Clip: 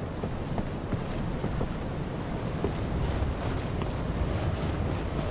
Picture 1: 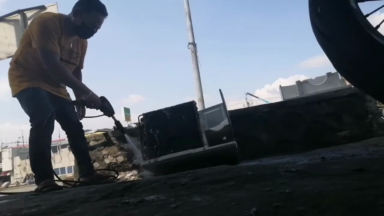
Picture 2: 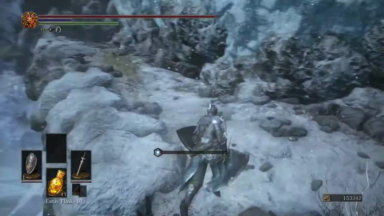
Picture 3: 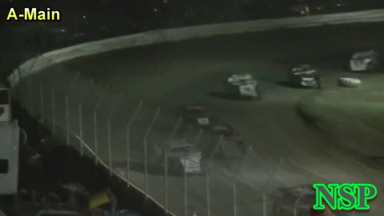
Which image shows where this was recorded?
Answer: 2